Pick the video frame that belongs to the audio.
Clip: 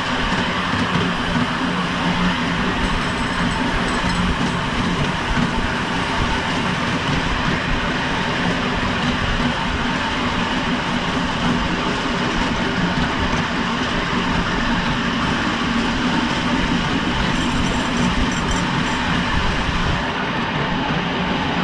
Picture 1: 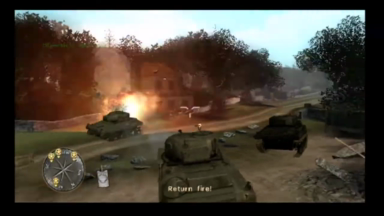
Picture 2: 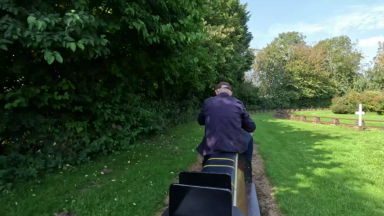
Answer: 2